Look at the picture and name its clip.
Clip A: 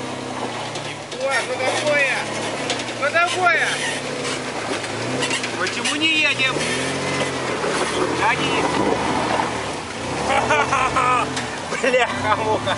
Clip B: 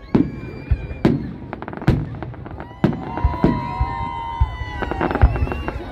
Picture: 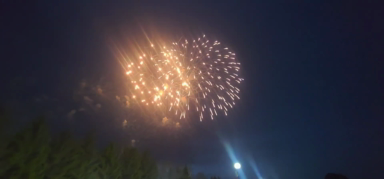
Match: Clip B